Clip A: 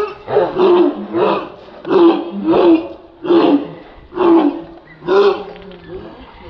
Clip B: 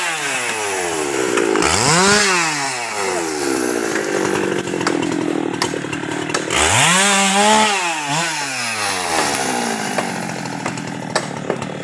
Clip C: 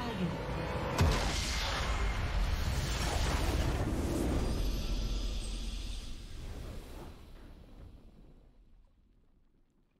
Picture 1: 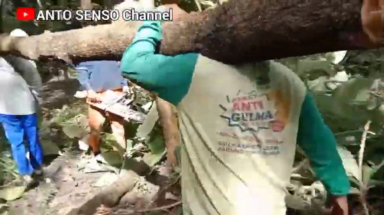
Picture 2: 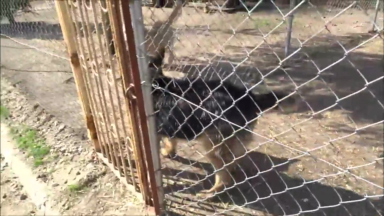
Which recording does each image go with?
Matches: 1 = B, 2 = A